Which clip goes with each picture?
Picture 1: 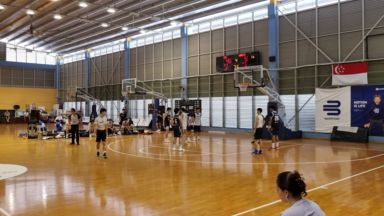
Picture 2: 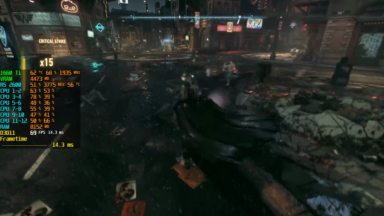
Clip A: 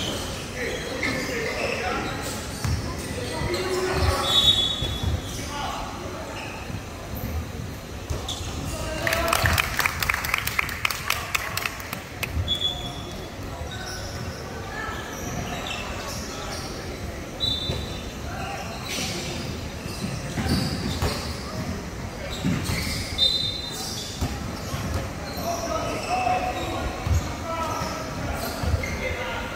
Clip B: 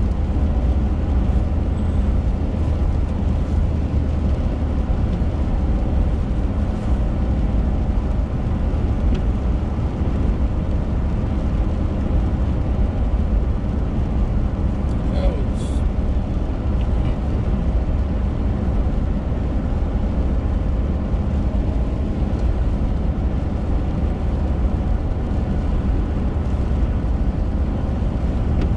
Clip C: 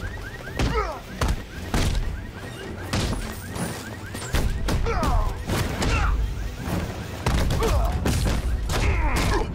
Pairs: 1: A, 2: C